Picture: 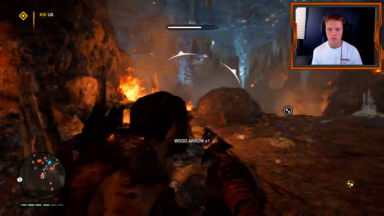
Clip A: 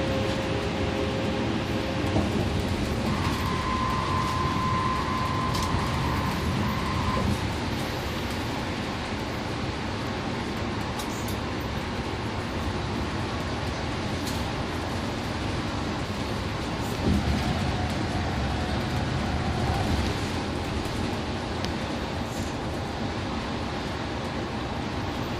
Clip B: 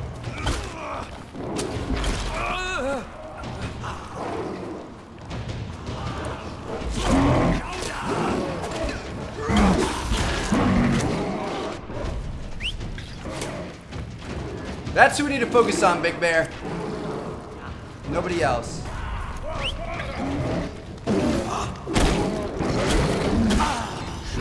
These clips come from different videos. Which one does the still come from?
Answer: B